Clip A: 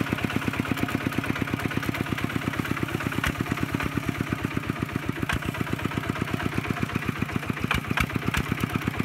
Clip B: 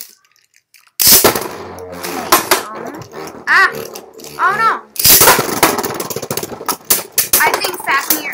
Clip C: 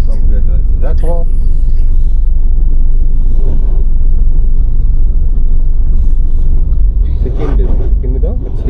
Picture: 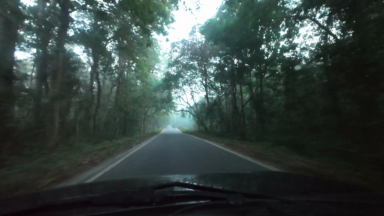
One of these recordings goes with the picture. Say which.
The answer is C